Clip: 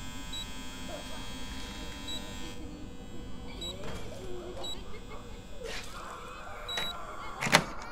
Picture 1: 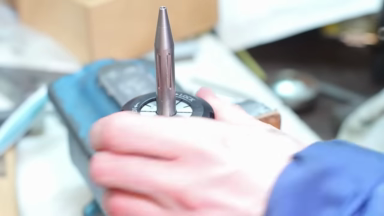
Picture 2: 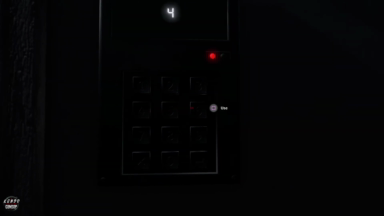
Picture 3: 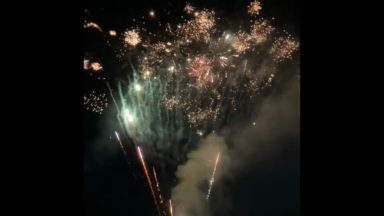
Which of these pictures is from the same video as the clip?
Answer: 2